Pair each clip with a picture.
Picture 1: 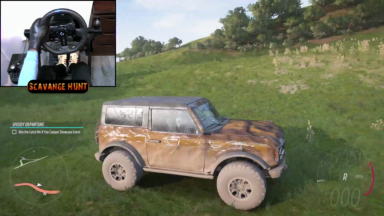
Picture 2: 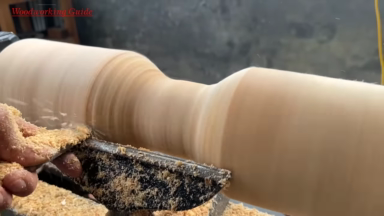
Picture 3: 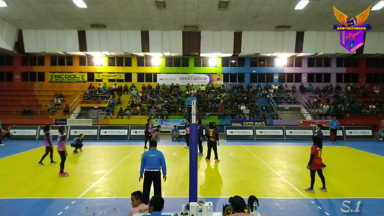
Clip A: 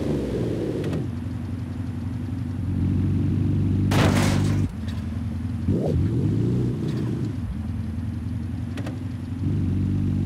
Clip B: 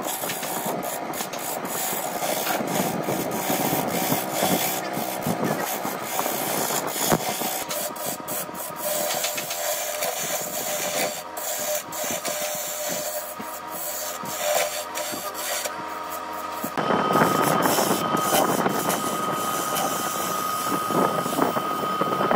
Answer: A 1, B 2